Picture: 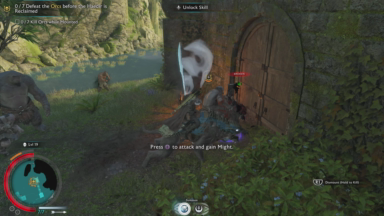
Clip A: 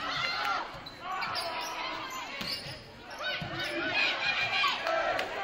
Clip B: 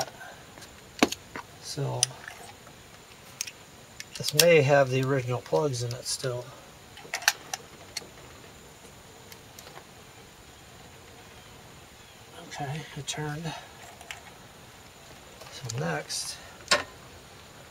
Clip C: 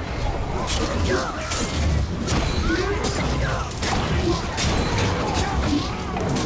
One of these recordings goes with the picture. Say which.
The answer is C